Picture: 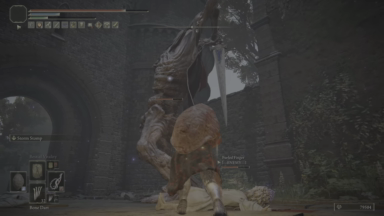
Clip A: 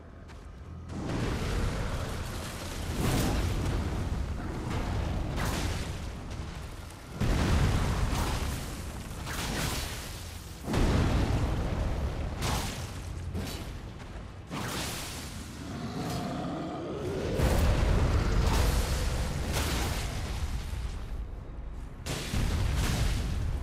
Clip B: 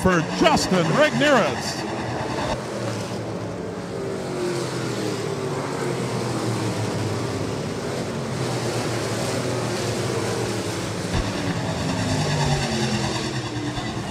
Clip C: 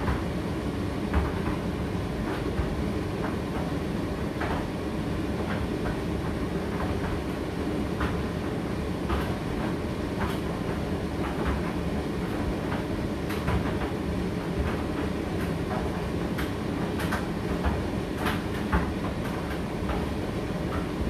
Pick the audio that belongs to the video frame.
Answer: A